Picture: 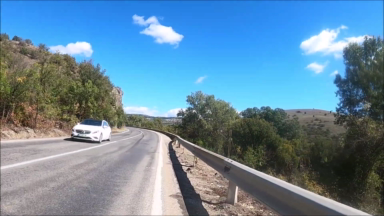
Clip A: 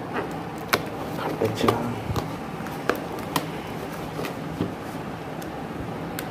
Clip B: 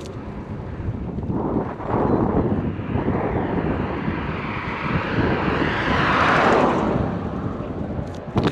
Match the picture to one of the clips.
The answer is B